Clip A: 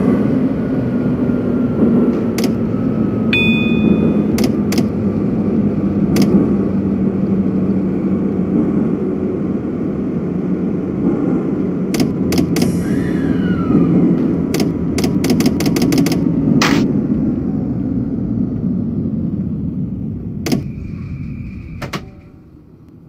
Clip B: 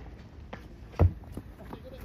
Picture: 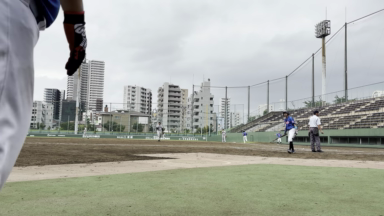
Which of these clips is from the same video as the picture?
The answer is B